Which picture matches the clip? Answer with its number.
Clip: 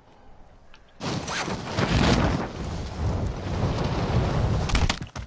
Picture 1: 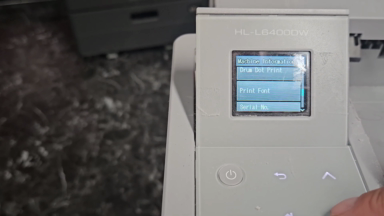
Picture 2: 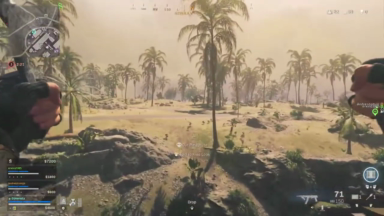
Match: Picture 2